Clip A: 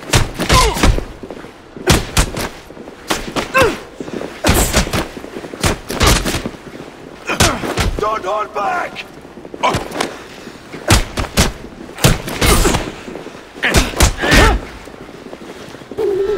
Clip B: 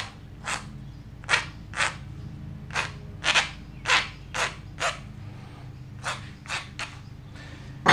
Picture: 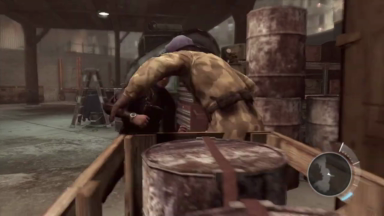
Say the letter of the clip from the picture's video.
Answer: A